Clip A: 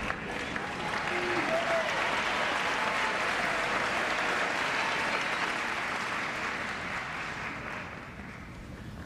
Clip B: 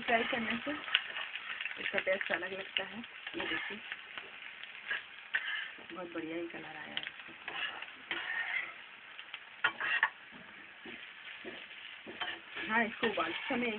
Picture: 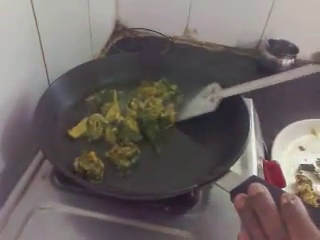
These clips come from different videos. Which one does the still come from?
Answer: B